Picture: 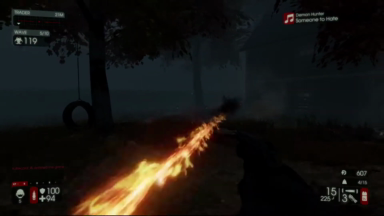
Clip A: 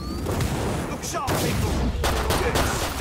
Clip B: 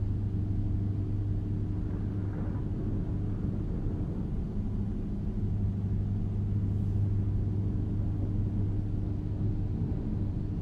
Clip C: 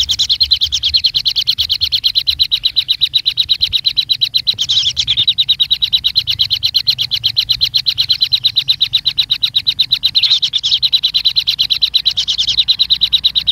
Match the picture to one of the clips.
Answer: A